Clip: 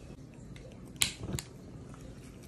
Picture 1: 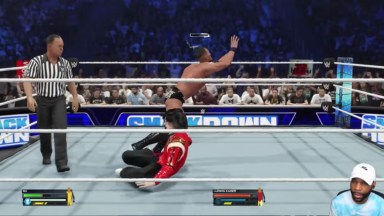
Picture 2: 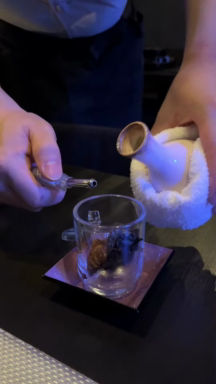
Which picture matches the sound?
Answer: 2